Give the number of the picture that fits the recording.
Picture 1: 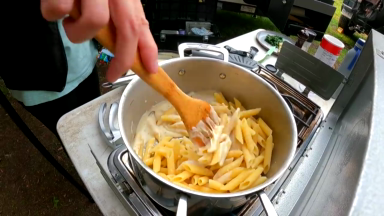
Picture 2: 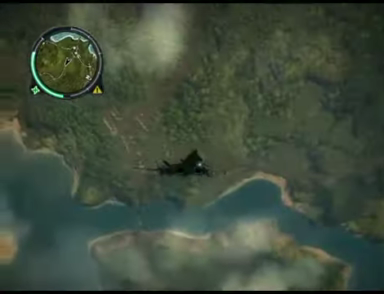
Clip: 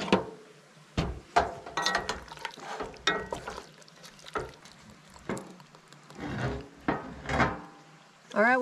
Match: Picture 1